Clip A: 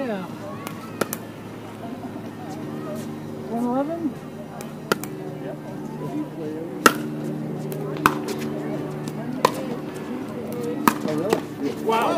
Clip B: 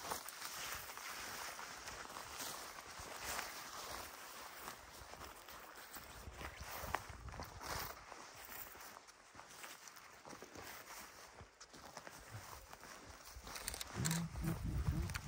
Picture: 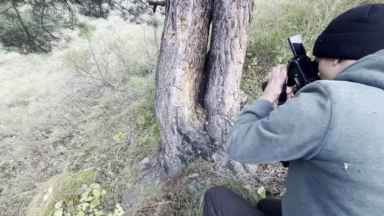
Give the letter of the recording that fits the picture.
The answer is B